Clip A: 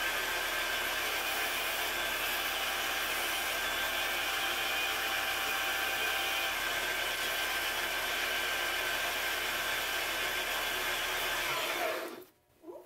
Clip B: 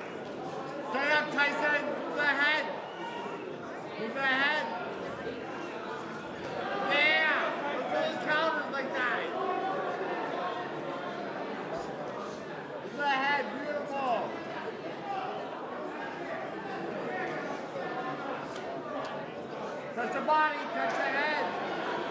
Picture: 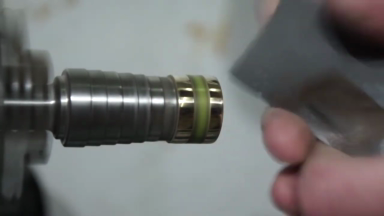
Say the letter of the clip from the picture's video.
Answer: A